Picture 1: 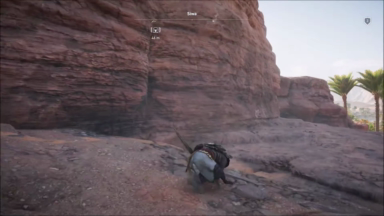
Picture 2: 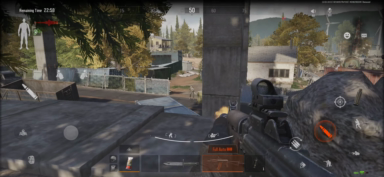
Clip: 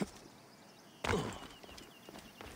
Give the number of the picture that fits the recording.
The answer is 1